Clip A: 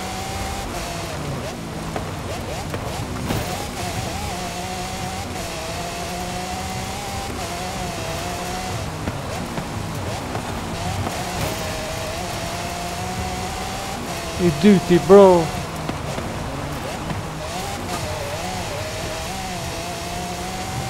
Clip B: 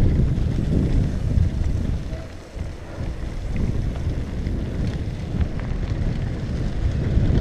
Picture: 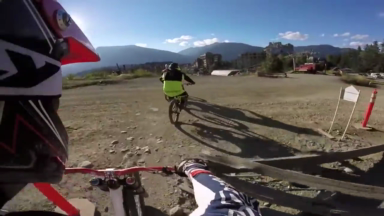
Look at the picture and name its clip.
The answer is B